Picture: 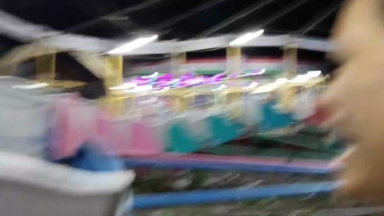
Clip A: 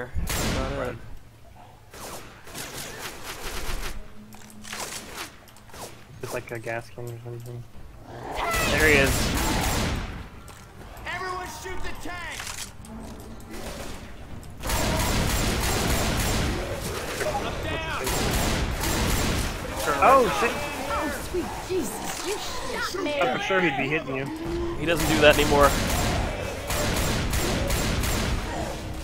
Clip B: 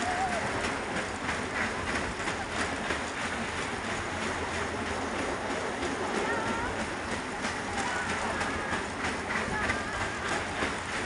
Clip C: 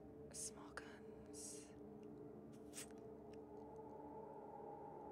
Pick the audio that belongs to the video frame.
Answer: B